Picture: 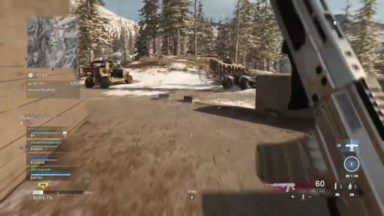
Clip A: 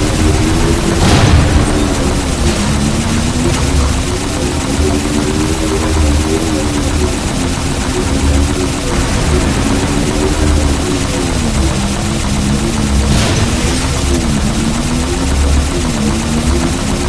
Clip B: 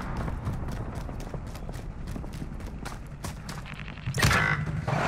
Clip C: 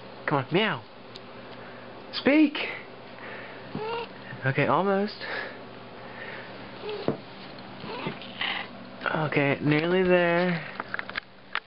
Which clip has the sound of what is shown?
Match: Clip B